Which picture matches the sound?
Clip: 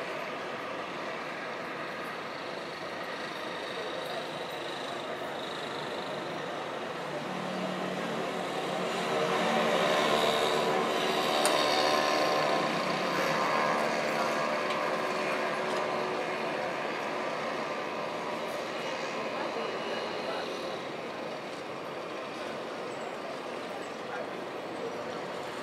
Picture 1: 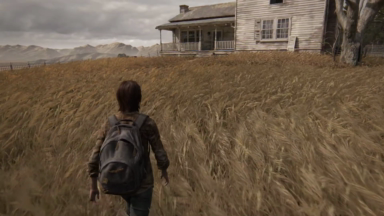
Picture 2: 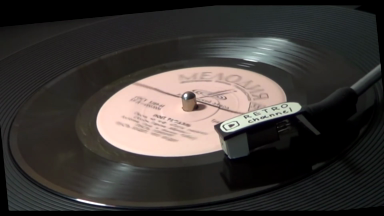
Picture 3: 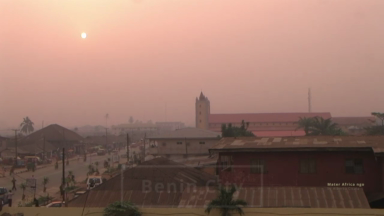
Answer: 3